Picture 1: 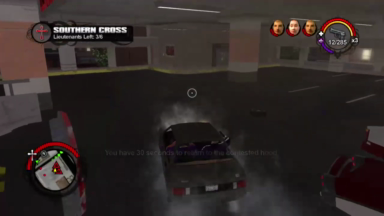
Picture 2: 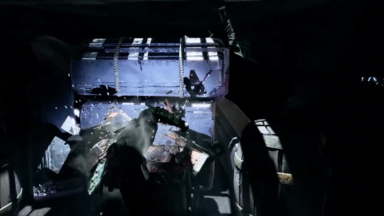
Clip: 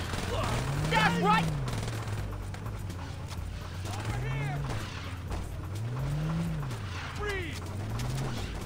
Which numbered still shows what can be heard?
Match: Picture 1